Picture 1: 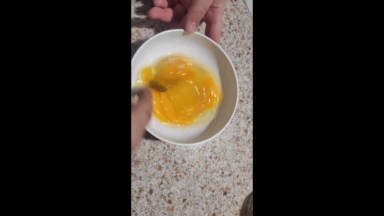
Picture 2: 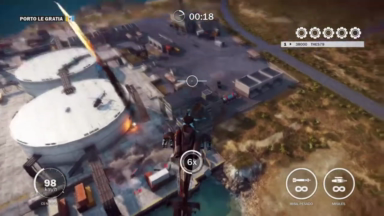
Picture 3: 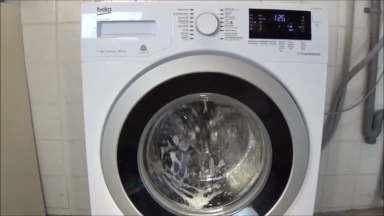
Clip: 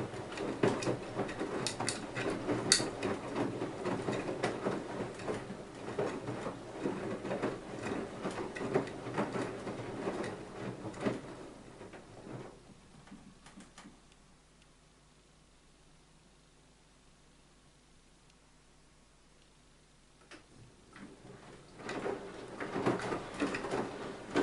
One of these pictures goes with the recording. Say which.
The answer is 3